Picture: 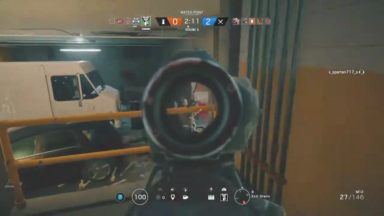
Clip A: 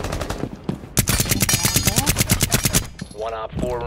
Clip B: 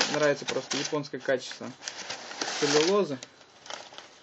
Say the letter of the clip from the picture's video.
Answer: A